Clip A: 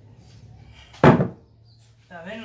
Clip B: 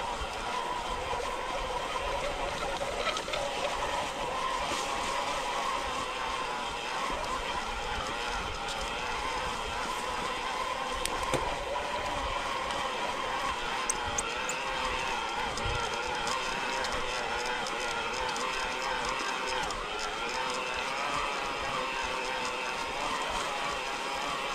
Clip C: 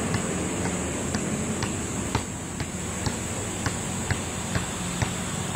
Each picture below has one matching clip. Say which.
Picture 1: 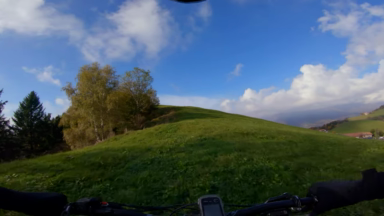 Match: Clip B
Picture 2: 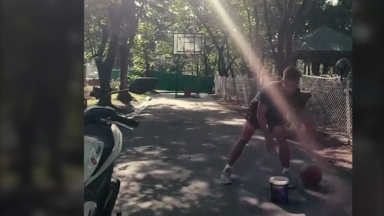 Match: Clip C